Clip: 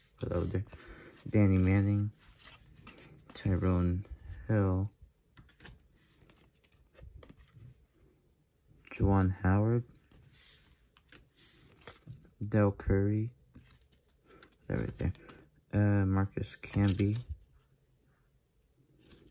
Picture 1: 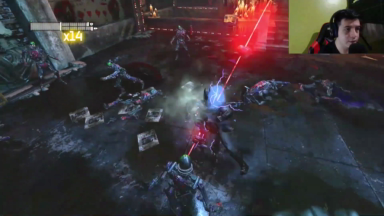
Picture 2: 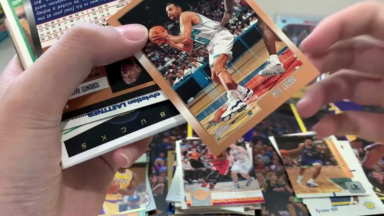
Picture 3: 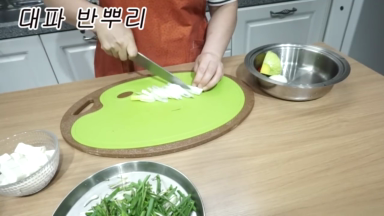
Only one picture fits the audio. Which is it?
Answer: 2